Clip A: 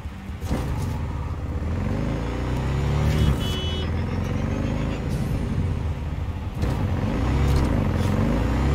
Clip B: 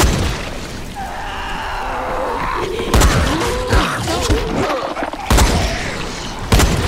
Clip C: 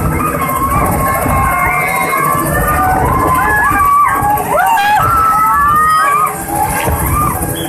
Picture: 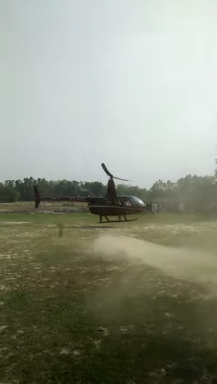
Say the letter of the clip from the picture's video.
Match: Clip C